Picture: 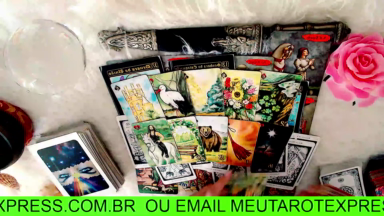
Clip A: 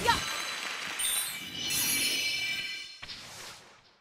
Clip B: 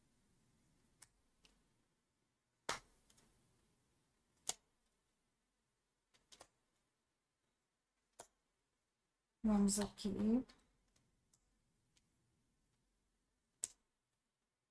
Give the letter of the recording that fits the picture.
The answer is B